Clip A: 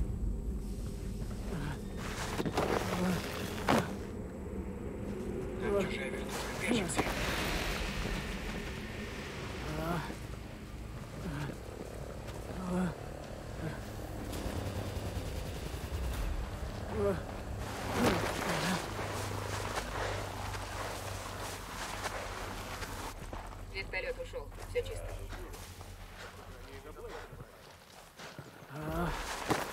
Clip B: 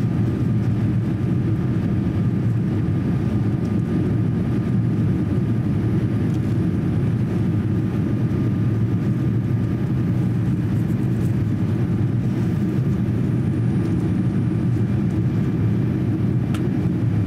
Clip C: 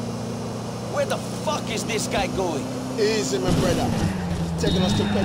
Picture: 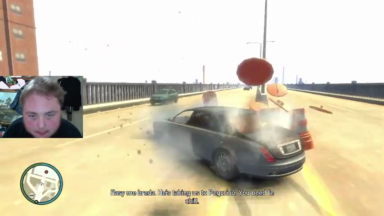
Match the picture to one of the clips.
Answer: C